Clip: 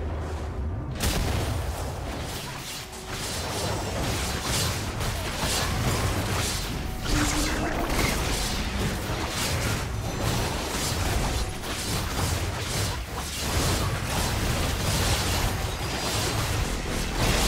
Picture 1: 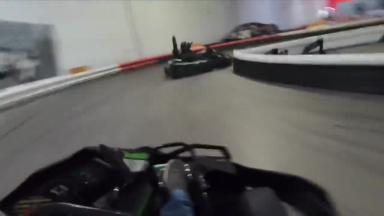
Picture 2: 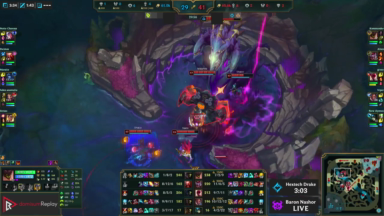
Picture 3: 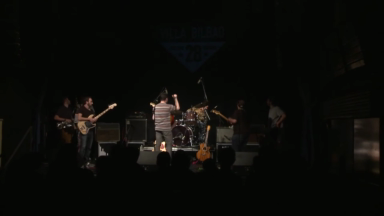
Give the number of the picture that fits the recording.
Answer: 2